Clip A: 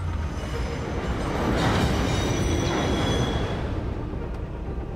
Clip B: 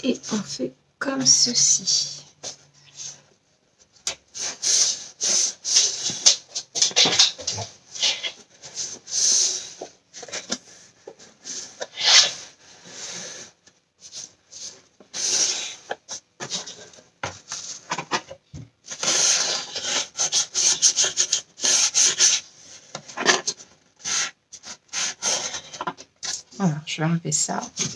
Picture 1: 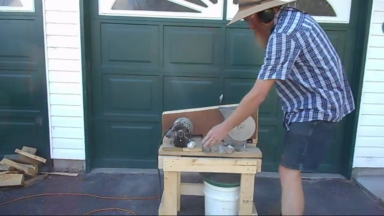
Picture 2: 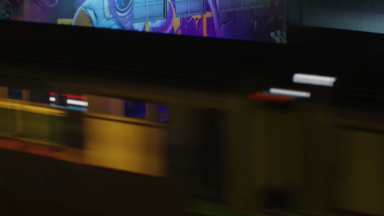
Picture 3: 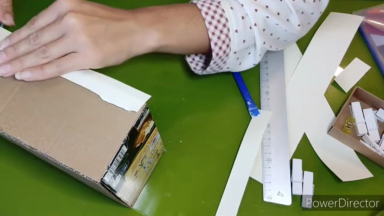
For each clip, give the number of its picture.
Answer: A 2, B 3